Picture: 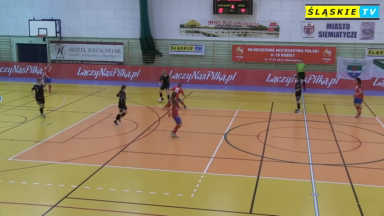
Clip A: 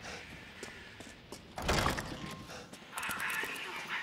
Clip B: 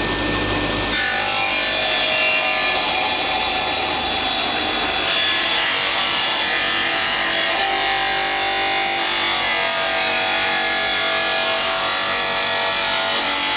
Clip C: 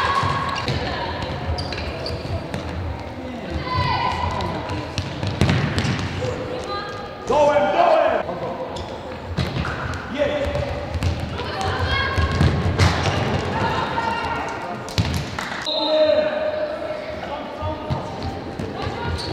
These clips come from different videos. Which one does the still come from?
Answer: C